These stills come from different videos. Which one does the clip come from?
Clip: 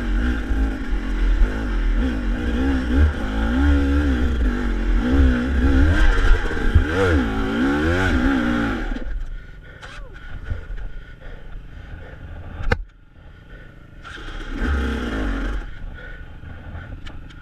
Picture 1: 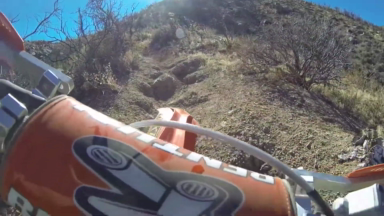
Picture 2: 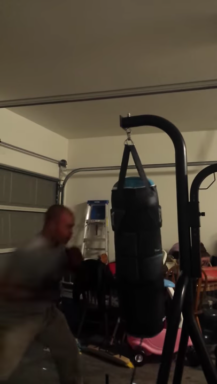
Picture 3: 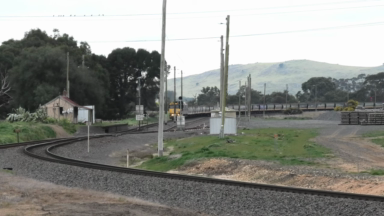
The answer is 1